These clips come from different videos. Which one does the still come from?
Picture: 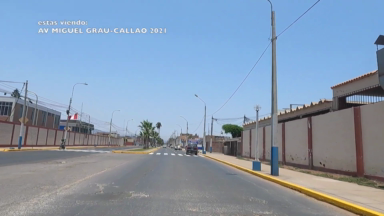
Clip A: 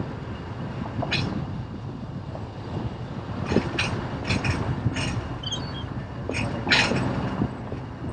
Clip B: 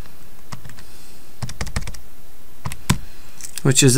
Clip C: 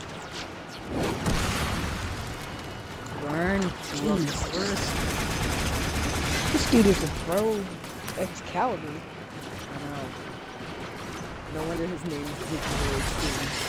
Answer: A